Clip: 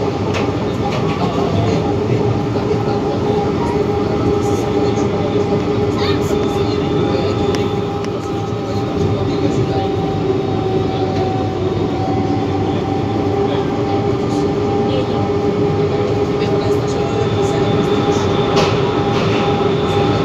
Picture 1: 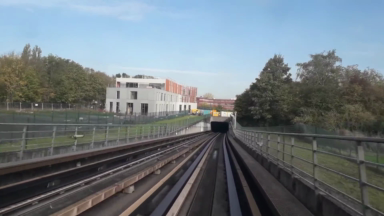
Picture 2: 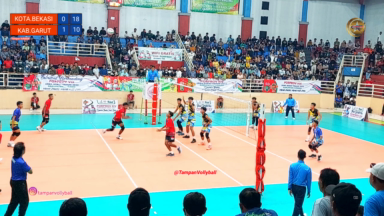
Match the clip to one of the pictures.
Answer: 1